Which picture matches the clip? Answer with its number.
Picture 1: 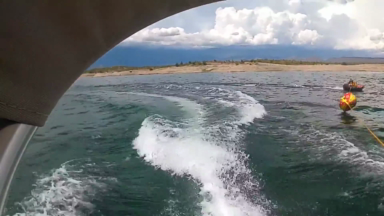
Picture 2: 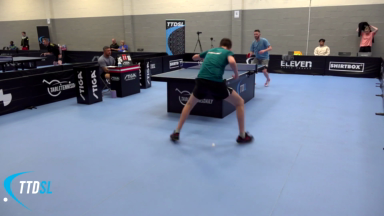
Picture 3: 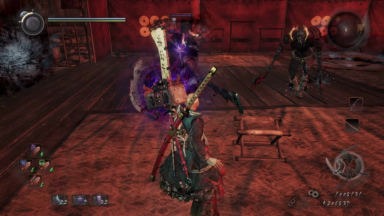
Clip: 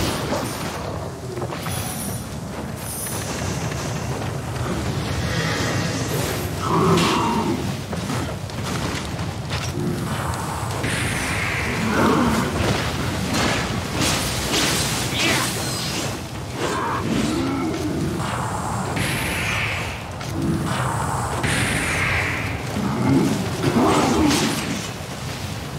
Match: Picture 3